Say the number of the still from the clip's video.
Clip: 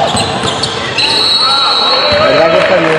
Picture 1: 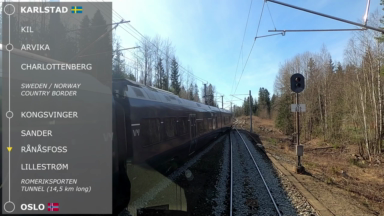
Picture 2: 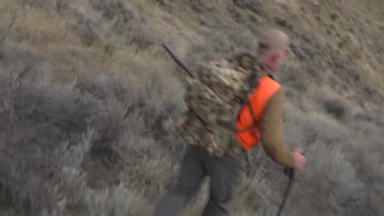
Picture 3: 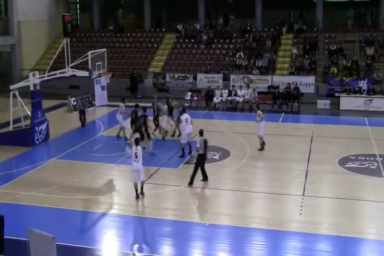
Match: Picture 3